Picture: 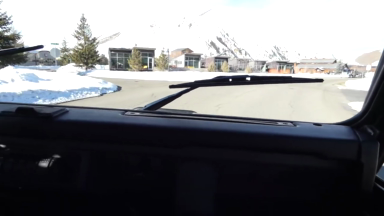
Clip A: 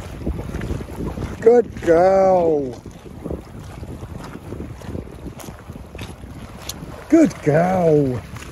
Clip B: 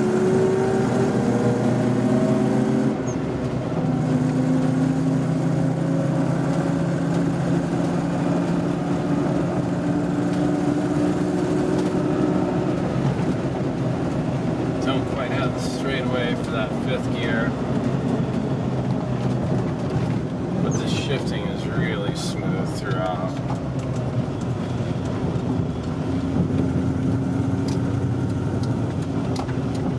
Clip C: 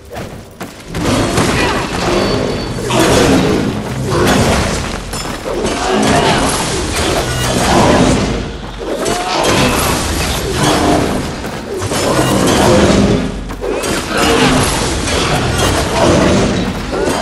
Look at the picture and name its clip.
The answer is B